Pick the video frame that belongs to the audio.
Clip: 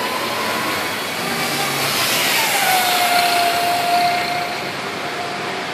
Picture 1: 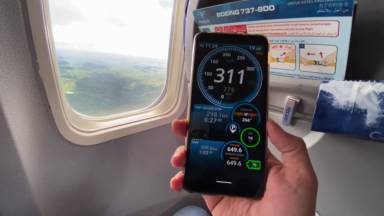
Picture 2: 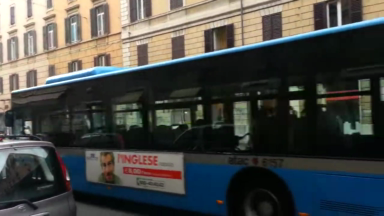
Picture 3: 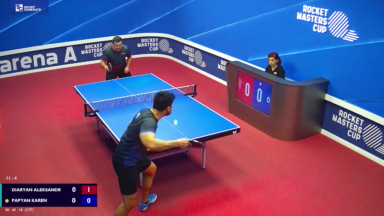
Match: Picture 2